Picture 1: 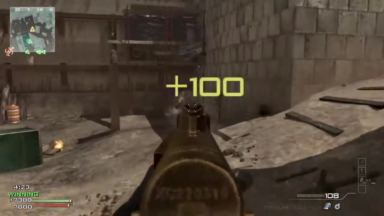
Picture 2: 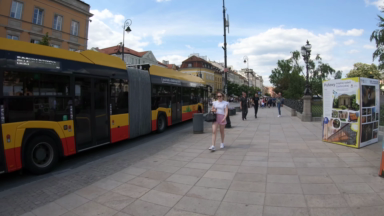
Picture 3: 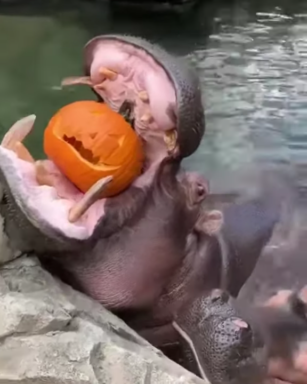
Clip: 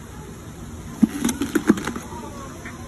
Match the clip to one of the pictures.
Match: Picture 3